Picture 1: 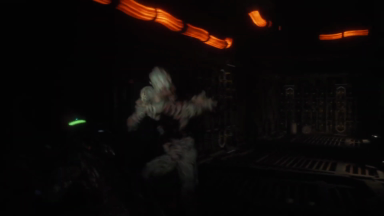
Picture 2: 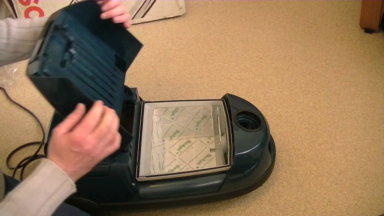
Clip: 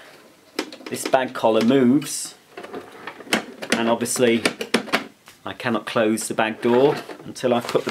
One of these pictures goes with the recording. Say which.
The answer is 2